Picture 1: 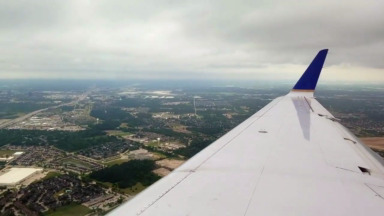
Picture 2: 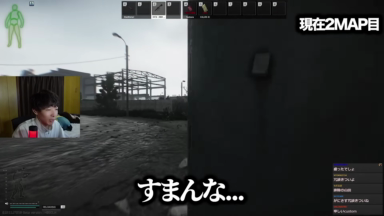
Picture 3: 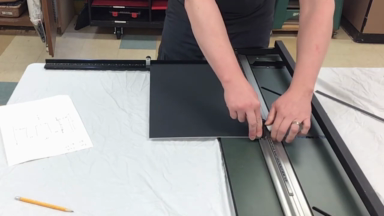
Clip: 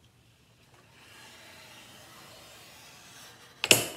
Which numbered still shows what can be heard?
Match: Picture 3